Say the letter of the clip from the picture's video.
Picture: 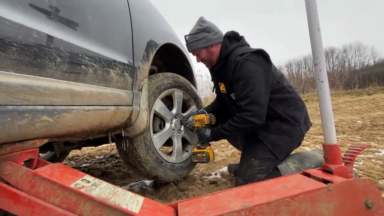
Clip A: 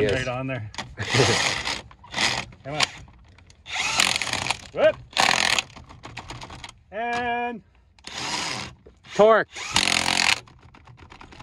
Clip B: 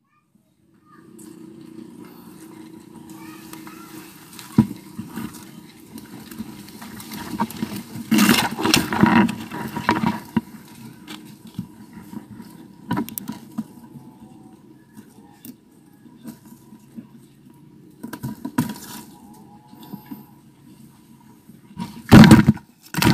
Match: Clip A